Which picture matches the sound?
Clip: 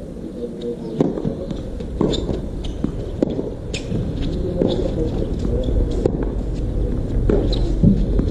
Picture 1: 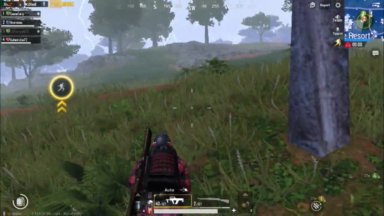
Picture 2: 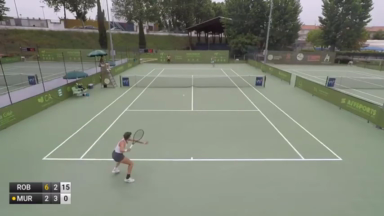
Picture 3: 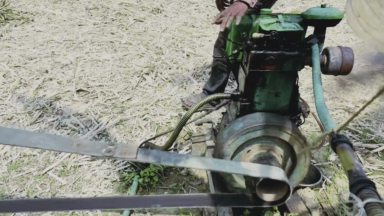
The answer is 2